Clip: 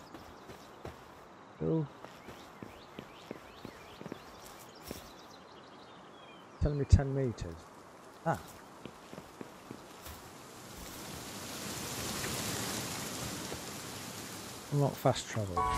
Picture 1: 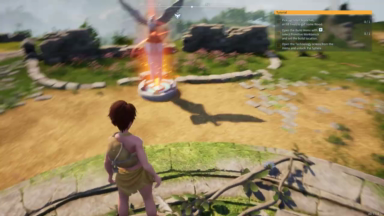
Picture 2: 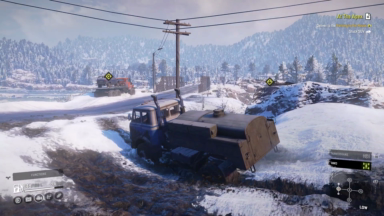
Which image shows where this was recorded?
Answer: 1